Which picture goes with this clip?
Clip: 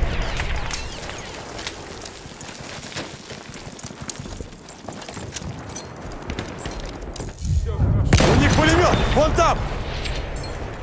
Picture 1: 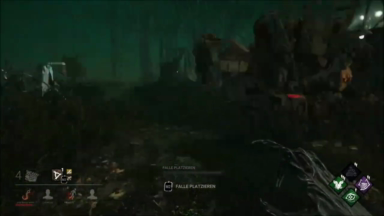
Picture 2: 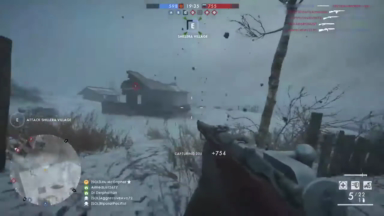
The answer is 2